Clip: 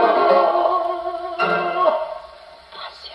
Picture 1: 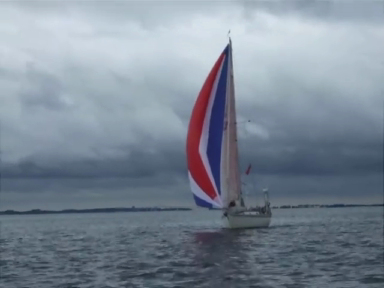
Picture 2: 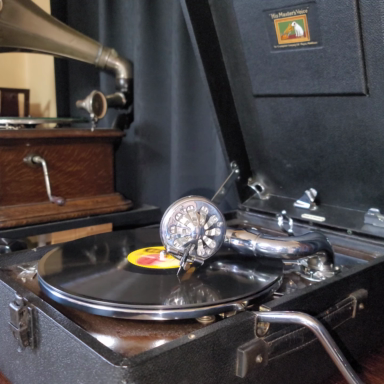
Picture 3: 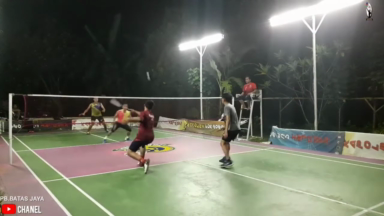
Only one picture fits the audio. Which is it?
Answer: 2